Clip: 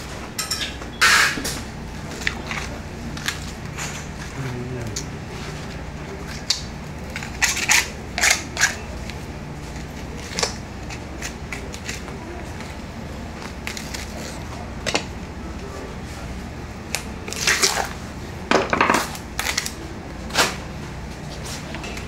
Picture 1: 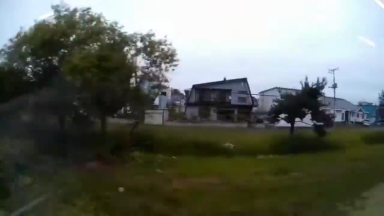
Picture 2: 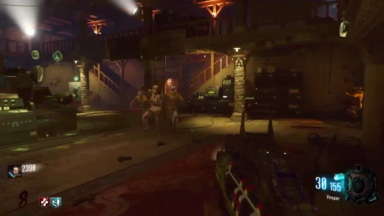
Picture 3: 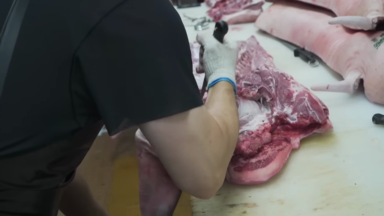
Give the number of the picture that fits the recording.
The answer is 3